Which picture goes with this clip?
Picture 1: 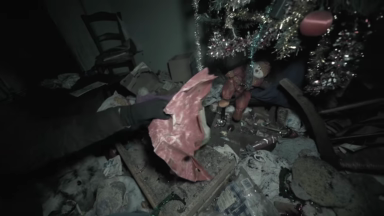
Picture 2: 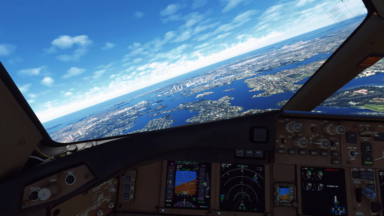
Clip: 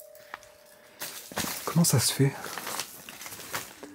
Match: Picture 1